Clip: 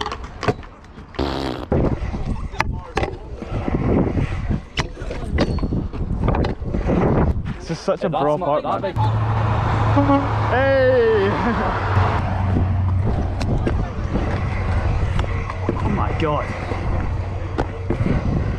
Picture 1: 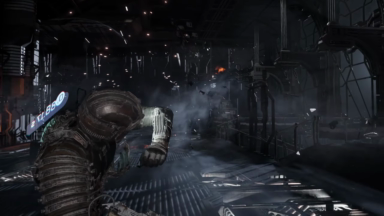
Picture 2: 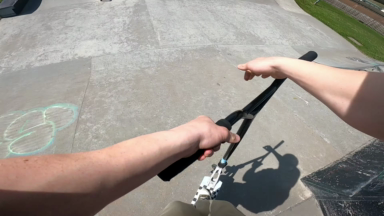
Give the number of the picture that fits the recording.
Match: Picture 2